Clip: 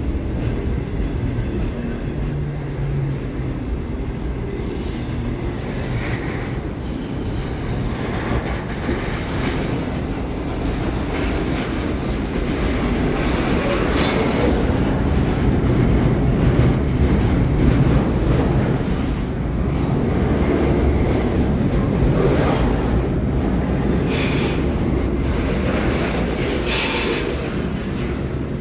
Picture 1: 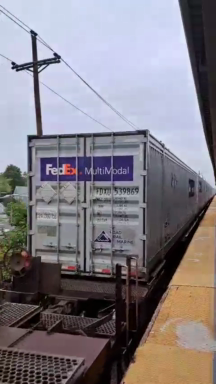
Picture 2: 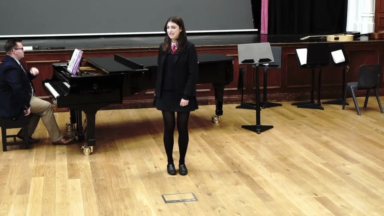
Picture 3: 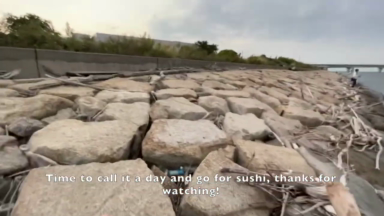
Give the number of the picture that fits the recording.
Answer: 1